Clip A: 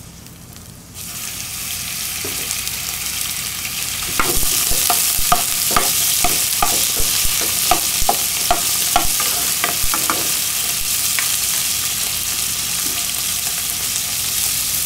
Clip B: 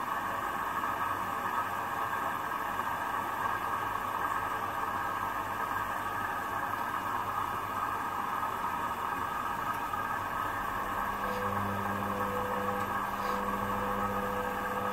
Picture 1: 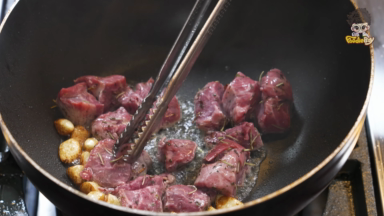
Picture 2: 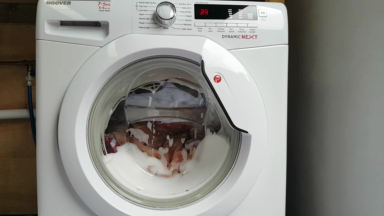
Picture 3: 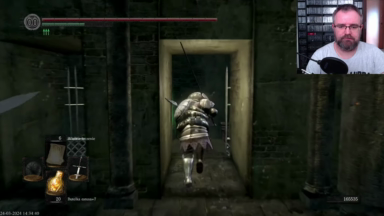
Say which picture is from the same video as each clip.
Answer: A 1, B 2